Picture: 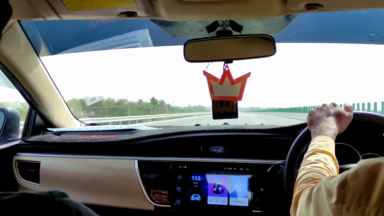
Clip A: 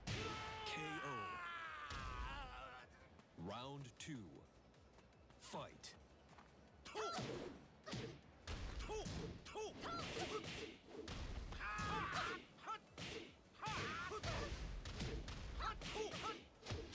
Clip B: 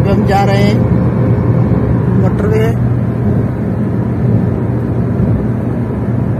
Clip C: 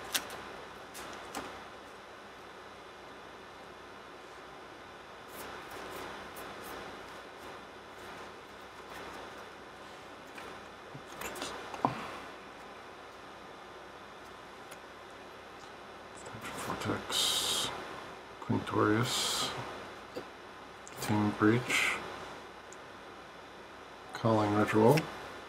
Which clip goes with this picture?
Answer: B